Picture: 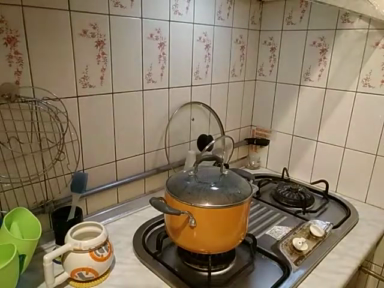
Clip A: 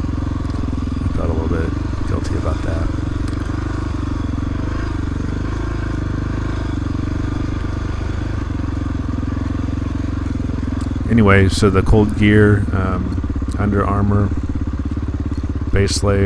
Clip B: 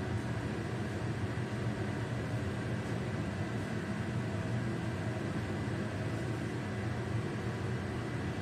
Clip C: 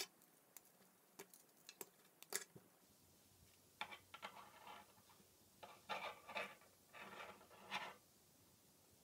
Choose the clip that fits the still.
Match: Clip B